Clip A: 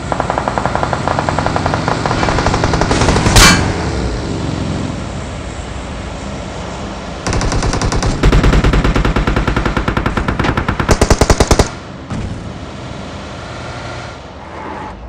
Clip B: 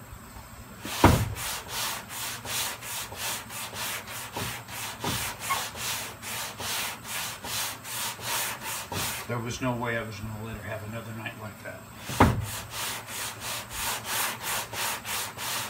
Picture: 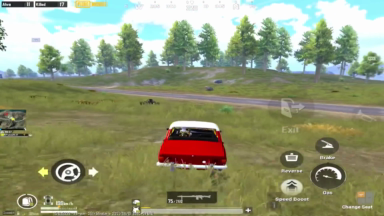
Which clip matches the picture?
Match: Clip A